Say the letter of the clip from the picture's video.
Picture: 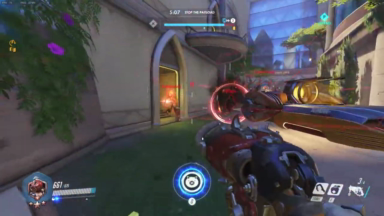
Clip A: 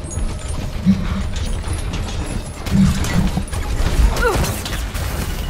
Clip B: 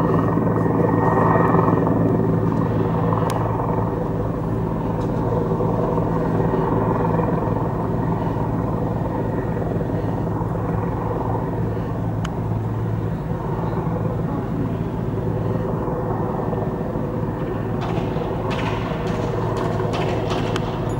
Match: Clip A